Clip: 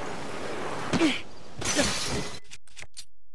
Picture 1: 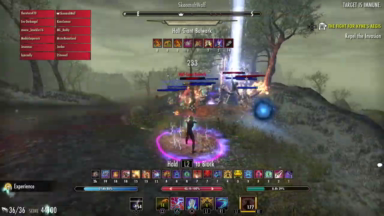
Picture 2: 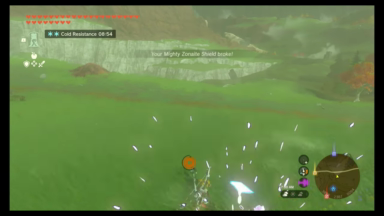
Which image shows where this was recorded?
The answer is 2